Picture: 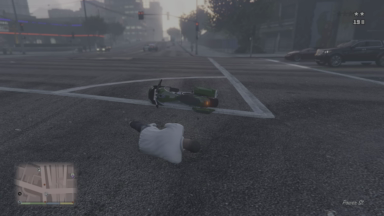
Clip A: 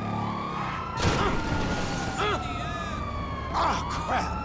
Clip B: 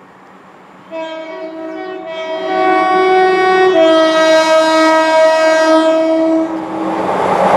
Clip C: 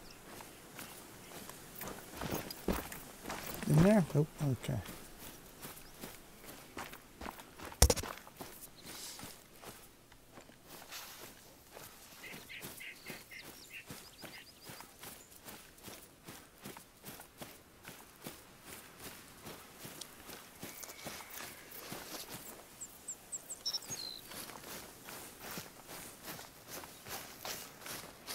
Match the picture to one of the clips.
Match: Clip A